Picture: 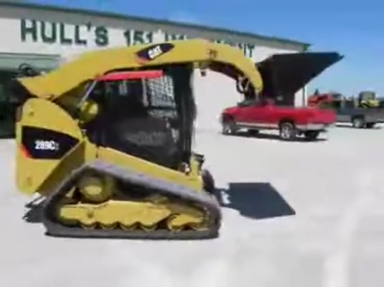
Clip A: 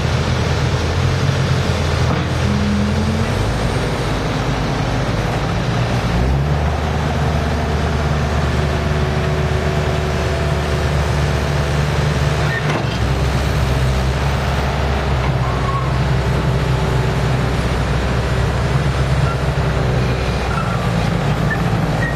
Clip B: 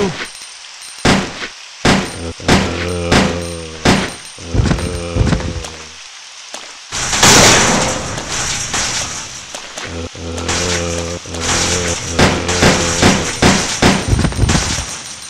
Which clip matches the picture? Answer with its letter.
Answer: A